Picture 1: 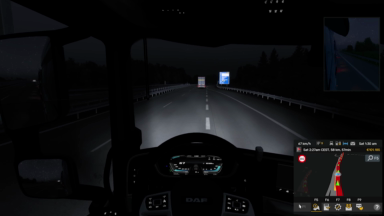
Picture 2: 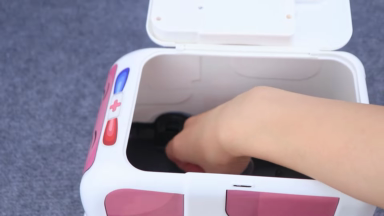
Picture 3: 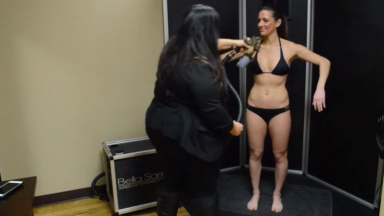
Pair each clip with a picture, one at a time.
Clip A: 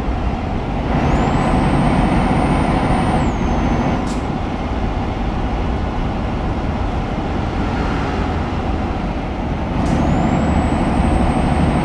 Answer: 1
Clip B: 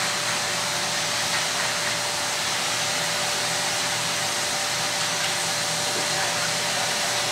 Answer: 3